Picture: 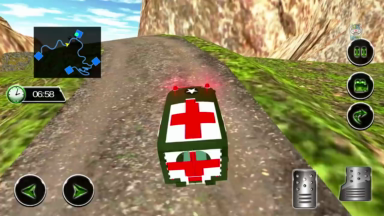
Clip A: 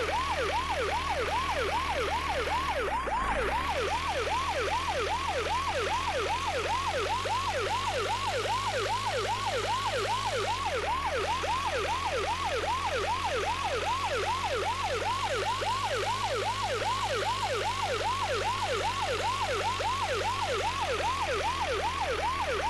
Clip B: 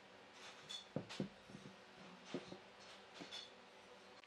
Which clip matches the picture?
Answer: A